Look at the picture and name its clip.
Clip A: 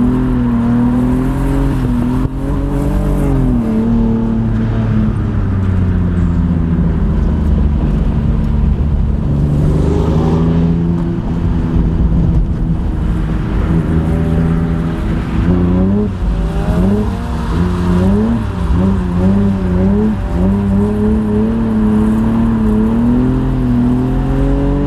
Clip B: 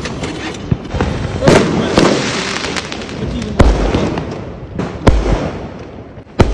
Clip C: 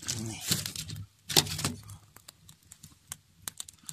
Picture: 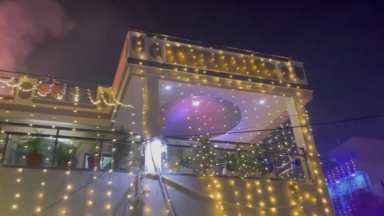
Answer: B